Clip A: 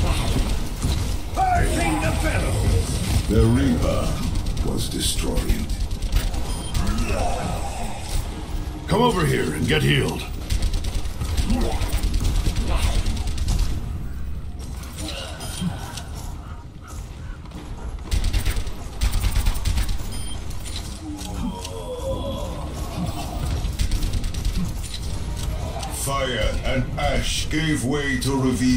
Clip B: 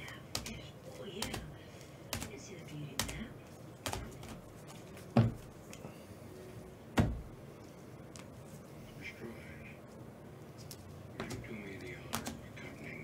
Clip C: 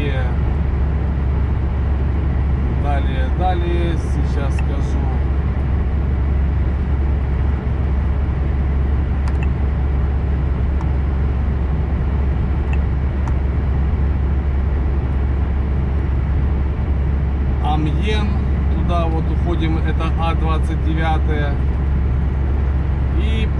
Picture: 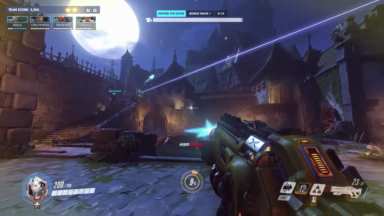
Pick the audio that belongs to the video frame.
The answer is A